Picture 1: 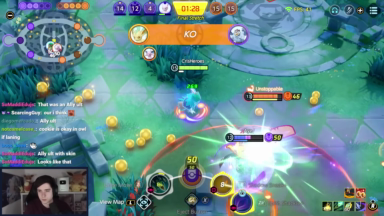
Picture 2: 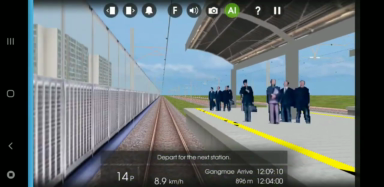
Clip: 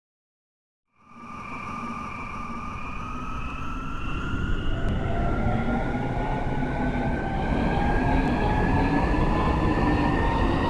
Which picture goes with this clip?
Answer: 2